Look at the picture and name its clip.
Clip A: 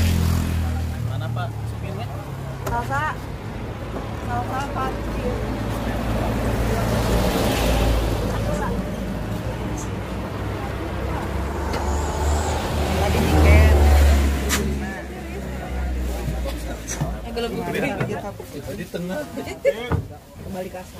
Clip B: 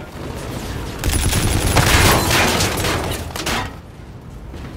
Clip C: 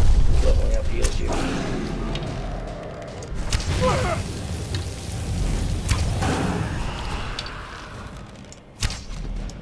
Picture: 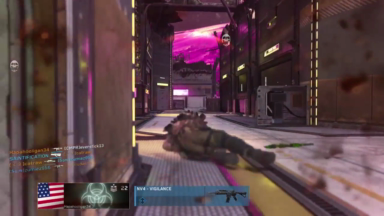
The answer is B